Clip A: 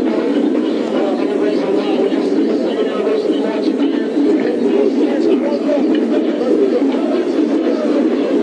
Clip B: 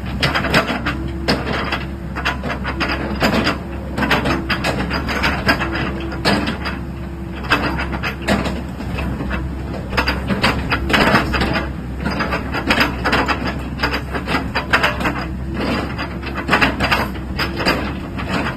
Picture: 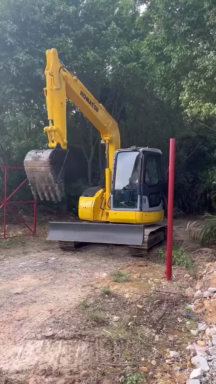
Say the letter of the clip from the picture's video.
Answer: B